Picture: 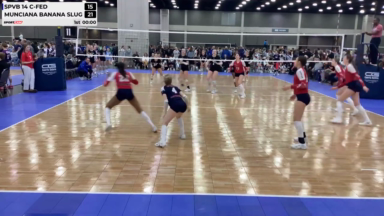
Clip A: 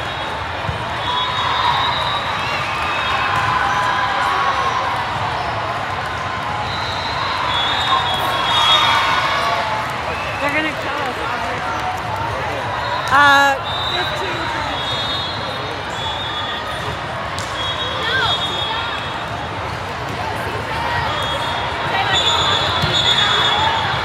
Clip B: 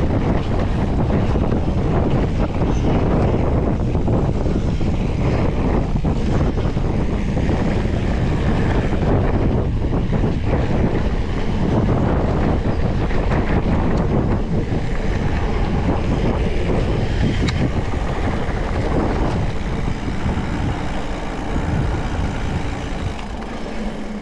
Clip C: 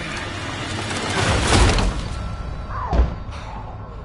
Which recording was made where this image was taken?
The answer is A